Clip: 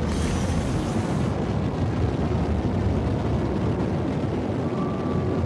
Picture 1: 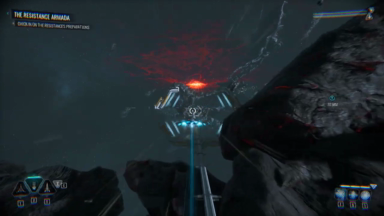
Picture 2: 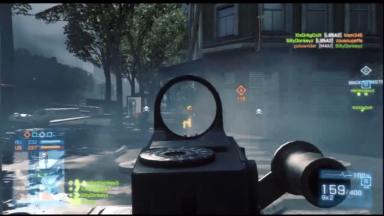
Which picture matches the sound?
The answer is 1